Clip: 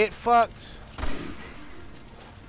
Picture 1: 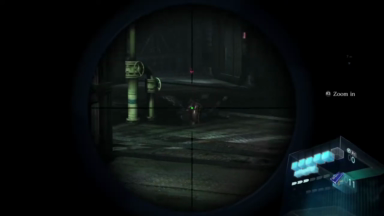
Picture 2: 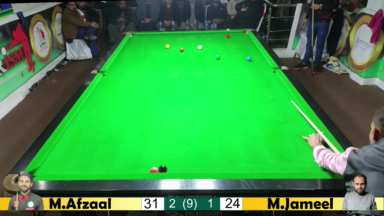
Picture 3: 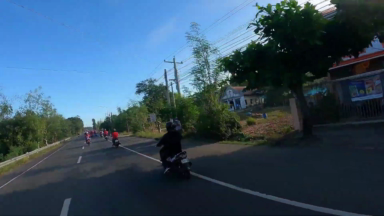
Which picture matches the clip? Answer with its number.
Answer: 1